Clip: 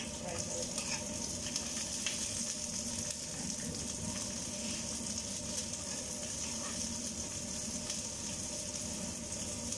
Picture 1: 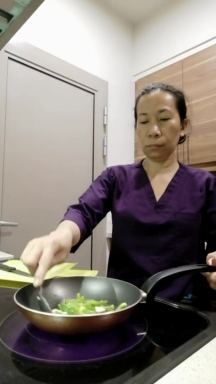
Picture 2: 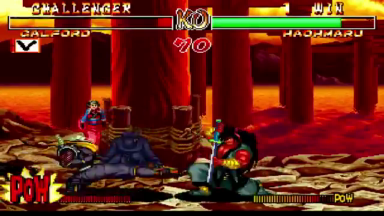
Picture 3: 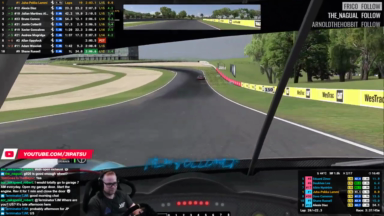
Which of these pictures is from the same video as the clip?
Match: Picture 1